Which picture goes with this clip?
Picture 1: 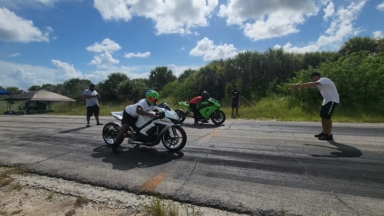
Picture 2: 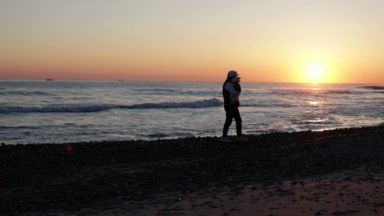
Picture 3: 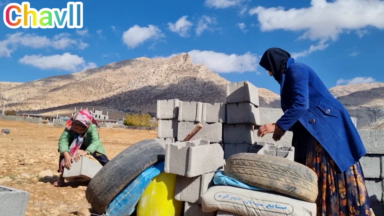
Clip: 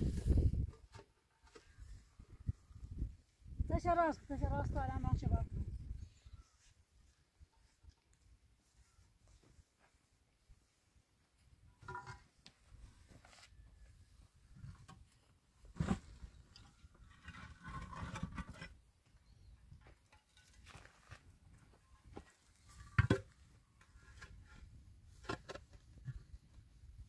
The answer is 3